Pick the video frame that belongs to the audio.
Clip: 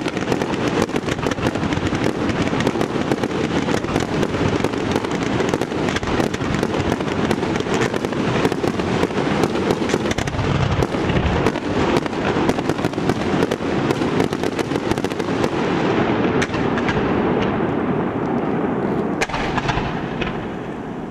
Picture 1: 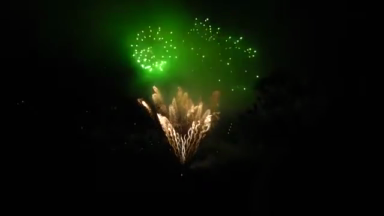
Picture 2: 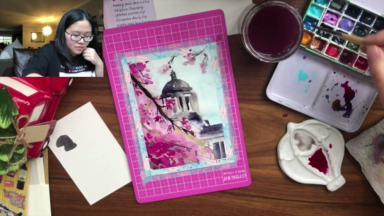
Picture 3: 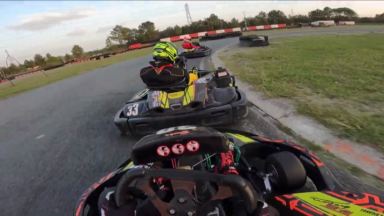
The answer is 1